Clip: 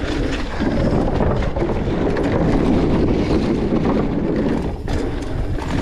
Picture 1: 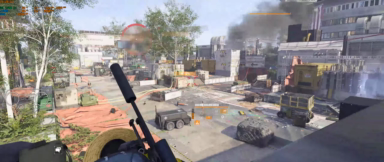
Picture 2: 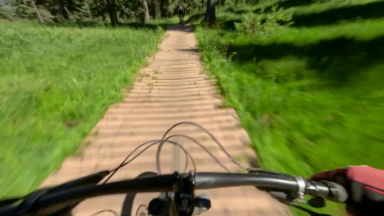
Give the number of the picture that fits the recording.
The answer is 2